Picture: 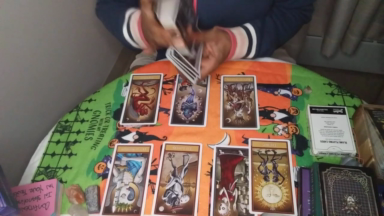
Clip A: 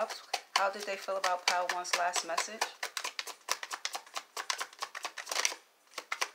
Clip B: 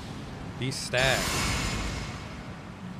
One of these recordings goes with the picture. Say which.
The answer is A